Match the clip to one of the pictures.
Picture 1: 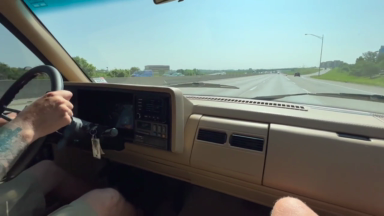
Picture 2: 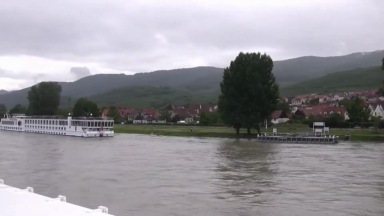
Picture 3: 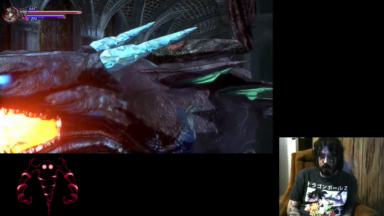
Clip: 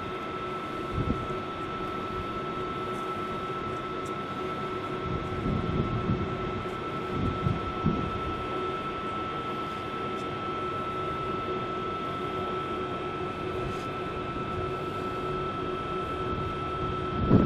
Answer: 2